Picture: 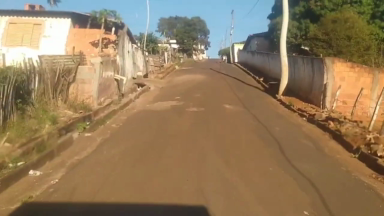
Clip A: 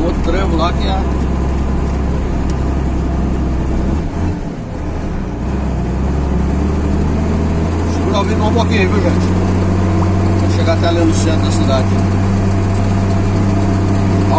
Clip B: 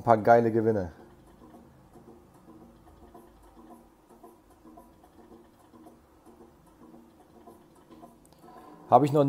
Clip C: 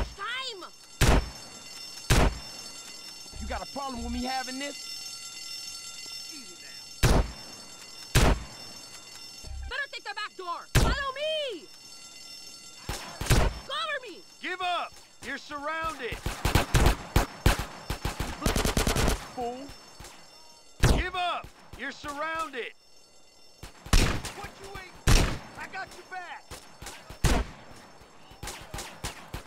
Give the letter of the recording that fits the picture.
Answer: A